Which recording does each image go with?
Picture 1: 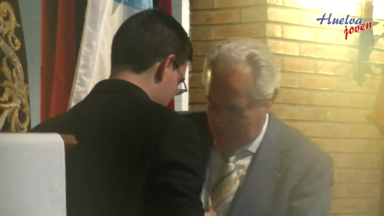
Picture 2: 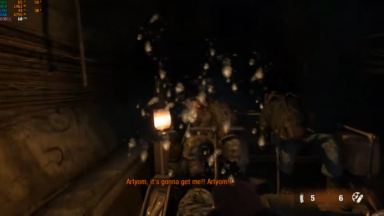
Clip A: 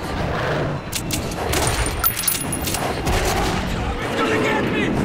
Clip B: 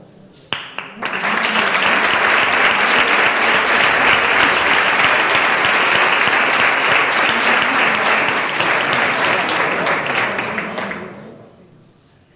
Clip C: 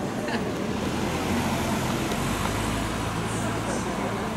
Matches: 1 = B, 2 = A